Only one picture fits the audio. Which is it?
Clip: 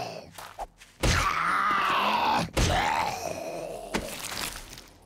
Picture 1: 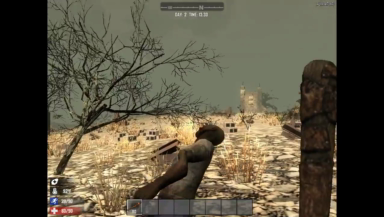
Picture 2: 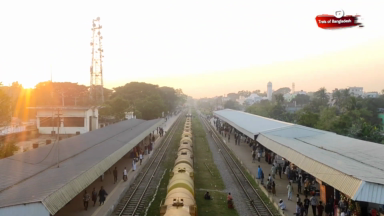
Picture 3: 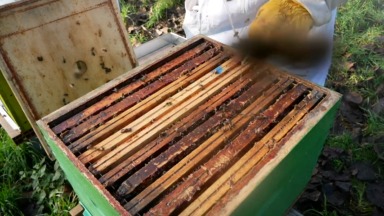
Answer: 1